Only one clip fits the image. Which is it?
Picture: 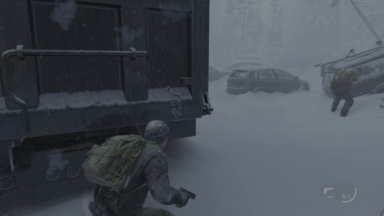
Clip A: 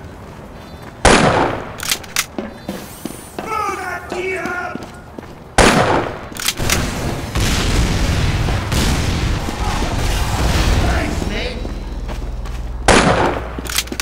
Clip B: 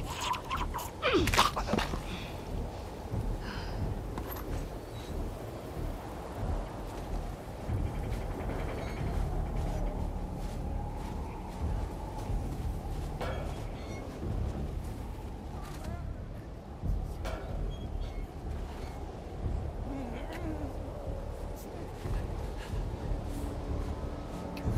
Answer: B